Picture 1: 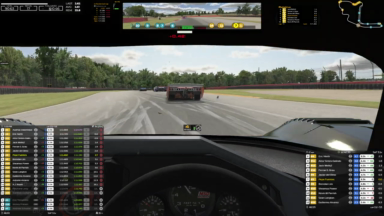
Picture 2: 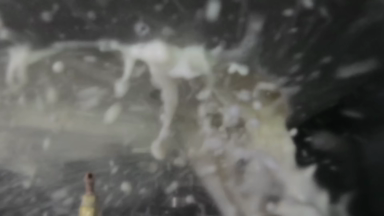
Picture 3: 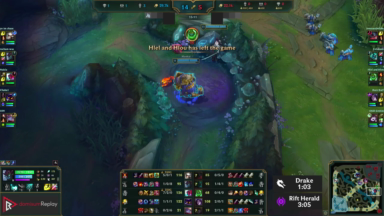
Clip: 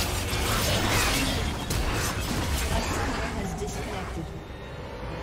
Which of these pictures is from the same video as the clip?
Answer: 3